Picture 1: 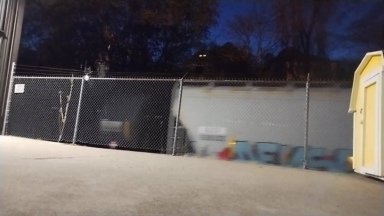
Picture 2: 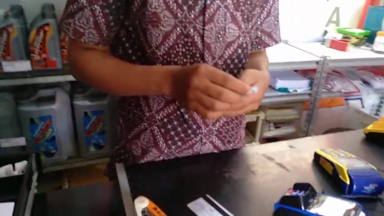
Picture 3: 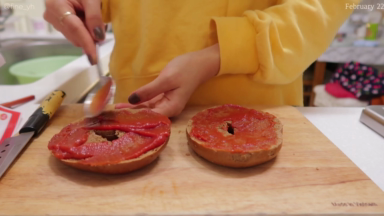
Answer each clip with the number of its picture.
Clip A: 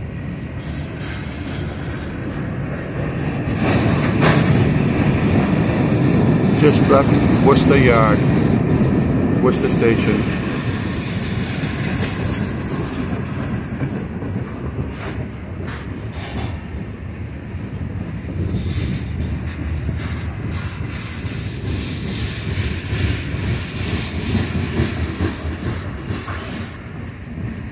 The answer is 1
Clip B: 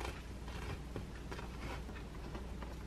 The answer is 3